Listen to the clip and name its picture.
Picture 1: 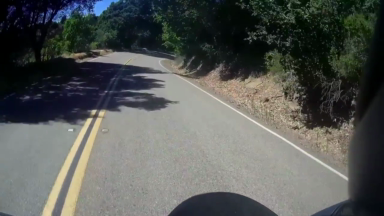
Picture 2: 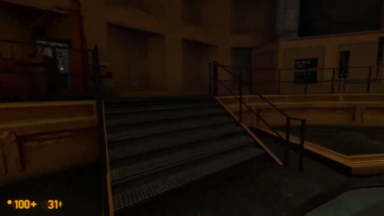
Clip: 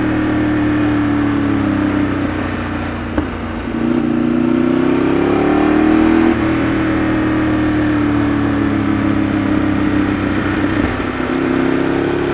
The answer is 1